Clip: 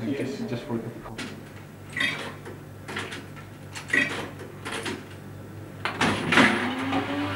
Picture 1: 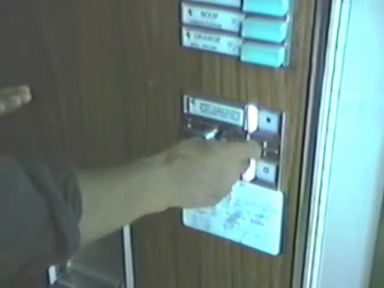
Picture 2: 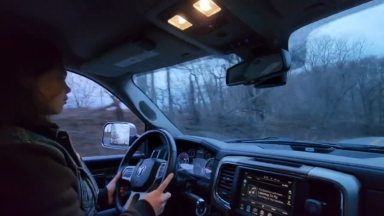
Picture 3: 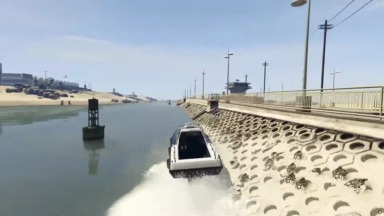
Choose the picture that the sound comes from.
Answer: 1